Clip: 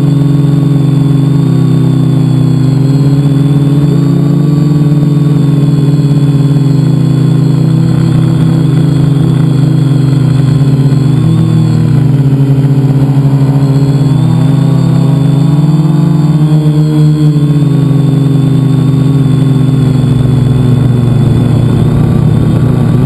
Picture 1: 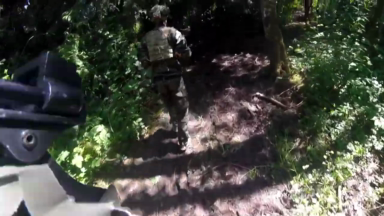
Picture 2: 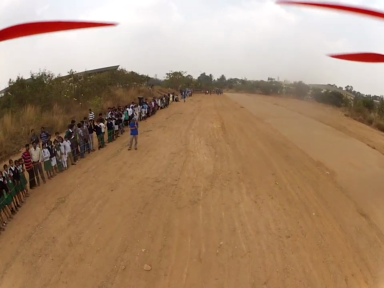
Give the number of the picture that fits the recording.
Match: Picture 2